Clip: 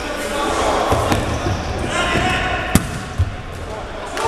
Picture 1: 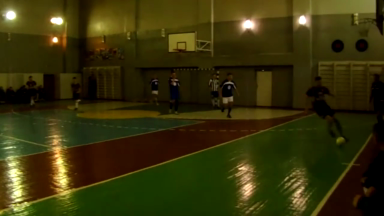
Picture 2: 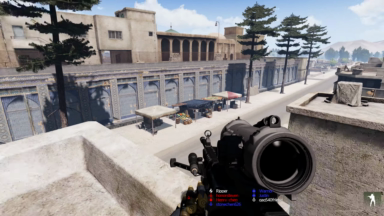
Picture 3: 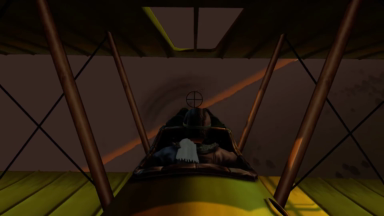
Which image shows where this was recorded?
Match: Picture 1